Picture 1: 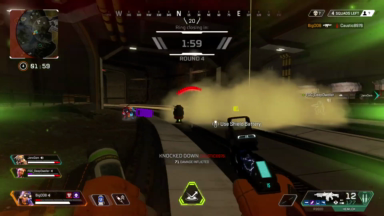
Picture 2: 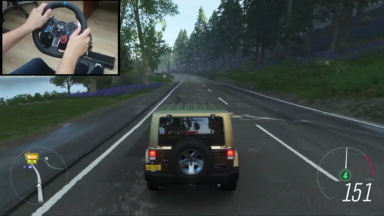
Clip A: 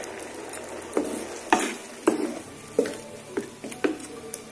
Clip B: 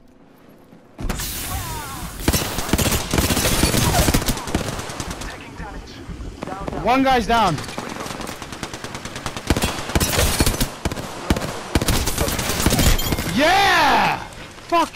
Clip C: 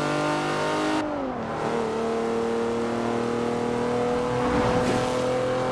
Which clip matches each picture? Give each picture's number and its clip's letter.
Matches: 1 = B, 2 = C